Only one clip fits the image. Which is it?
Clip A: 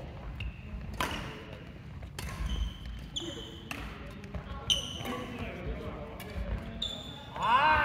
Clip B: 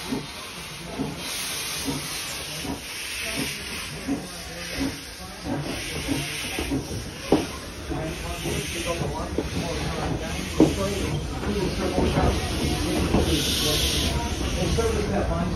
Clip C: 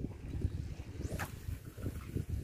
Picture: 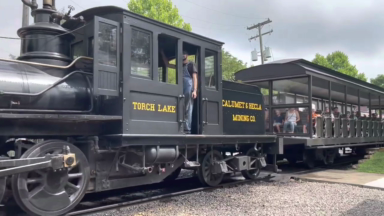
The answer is B